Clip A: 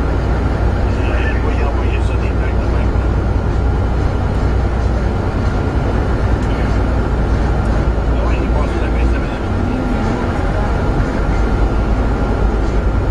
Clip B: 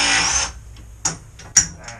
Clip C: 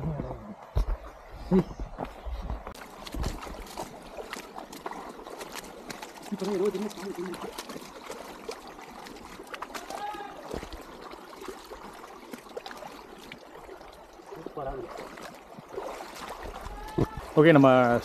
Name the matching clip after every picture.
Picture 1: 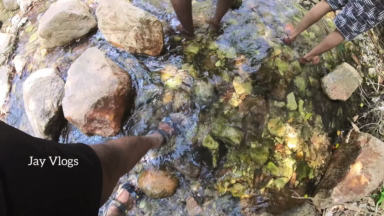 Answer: C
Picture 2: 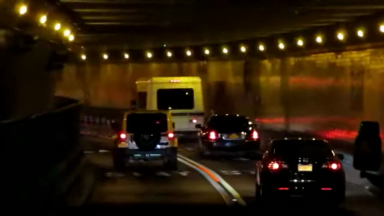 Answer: A